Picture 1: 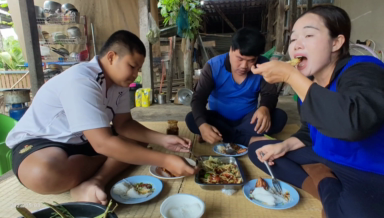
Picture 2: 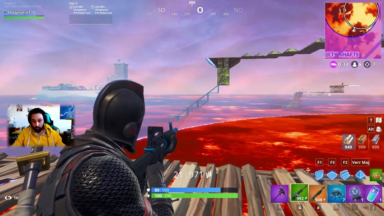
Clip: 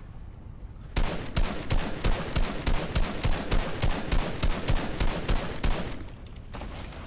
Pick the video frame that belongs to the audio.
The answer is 2